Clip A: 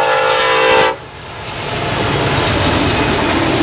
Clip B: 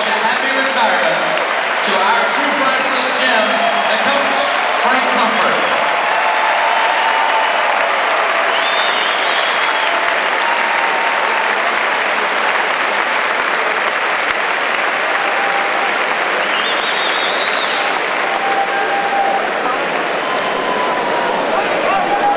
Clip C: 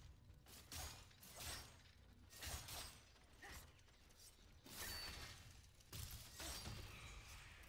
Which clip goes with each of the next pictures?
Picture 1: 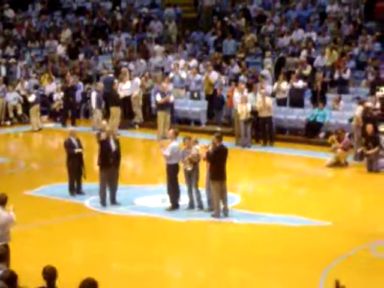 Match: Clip B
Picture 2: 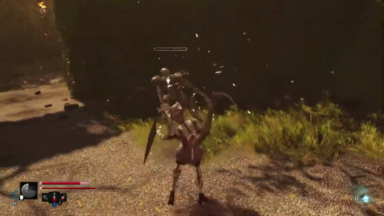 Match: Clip C